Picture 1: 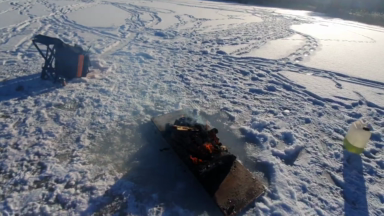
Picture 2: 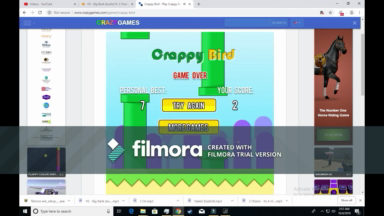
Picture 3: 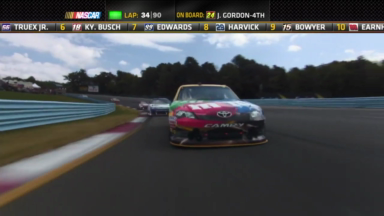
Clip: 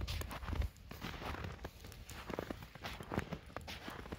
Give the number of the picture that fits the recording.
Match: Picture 1